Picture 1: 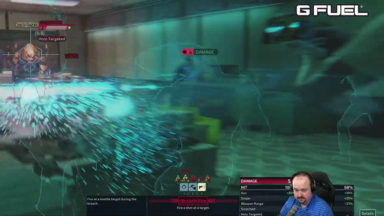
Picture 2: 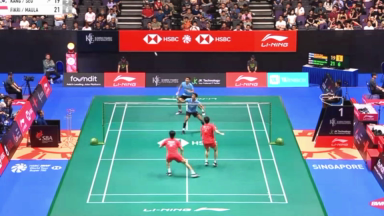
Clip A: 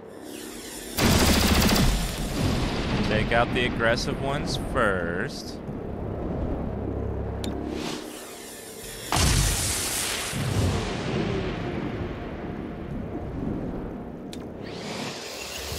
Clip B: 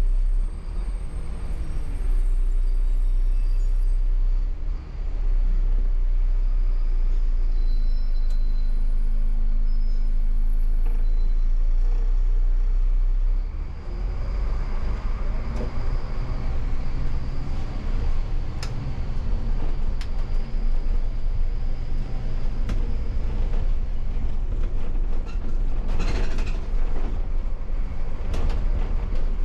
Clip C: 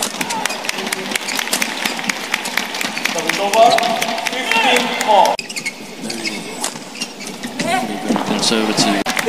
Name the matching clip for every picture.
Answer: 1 A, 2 C